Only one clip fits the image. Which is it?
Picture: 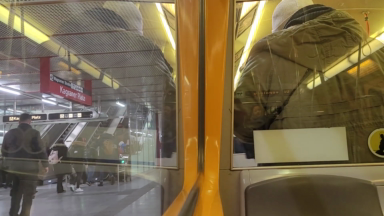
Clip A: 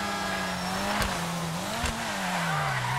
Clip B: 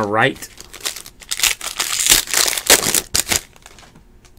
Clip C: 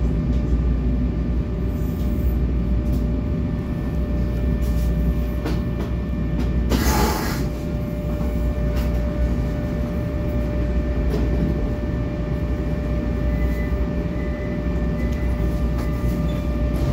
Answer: C